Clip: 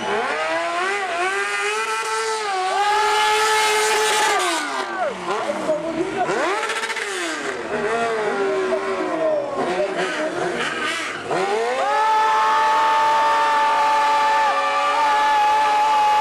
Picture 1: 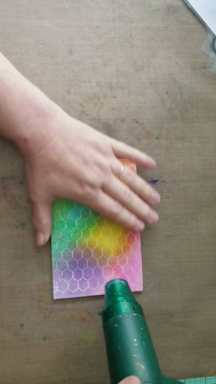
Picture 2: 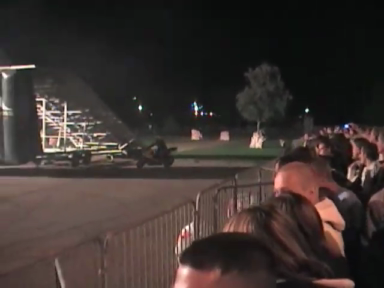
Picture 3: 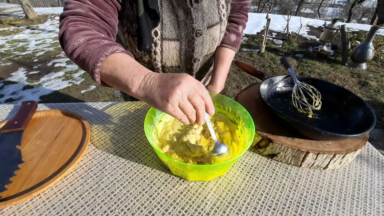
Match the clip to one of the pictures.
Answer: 2